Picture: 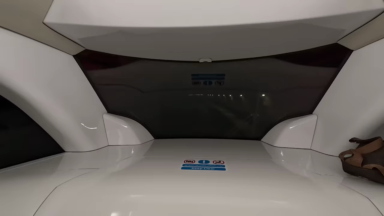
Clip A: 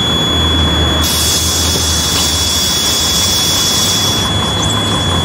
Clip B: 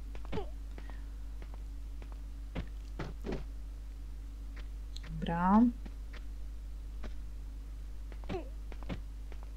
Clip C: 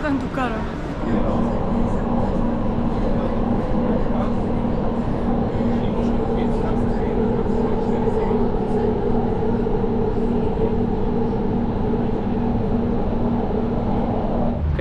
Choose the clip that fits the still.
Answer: C